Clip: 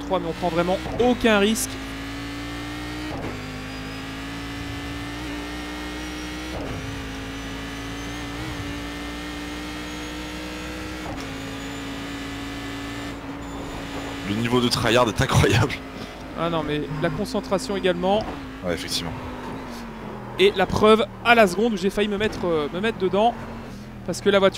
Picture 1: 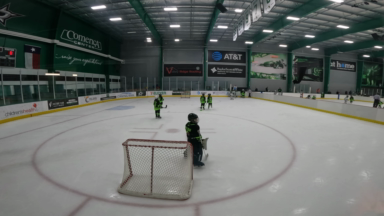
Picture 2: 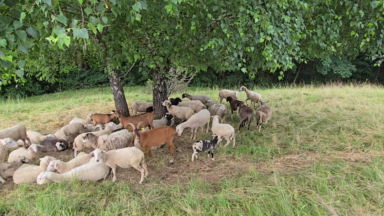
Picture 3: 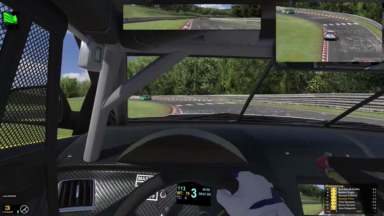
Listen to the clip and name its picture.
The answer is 3